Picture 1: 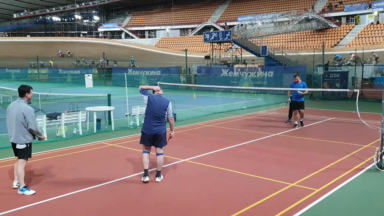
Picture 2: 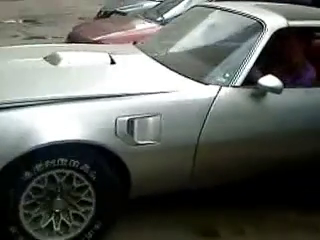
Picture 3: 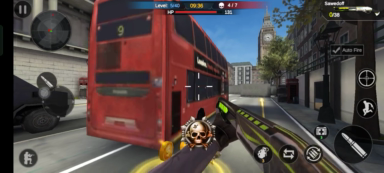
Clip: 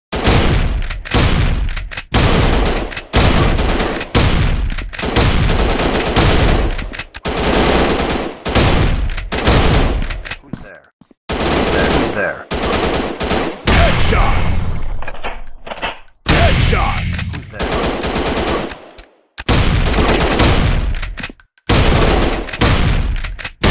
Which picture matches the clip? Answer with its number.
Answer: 3